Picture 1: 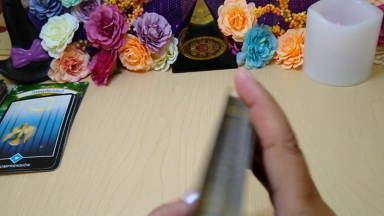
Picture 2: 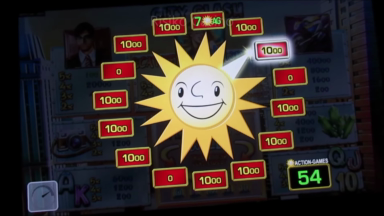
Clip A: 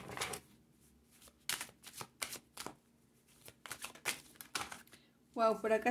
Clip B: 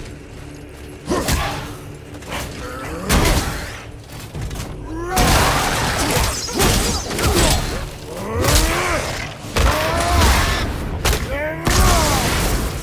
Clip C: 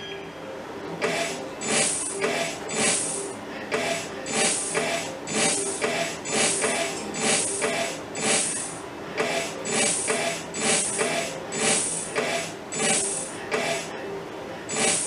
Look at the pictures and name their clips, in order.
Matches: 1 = A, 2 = C